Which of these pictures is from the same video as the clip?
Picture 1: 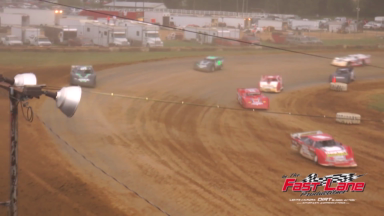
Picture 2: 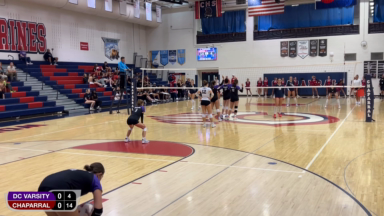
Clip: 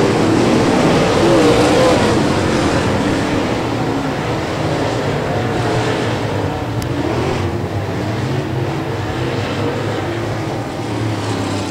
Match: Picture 1